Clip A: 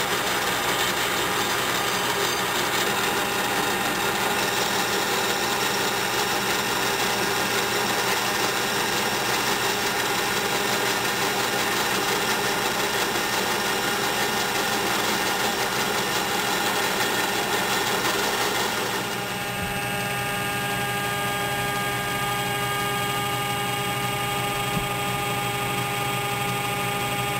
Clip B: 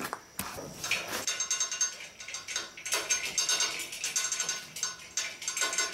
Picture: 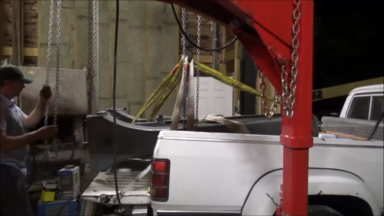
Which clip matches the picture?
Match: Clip B